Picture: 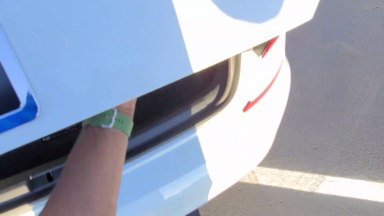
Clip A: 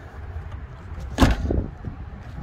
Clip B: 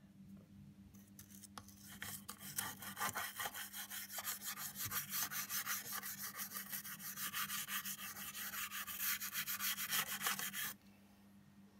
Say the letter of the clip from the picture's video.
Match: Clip A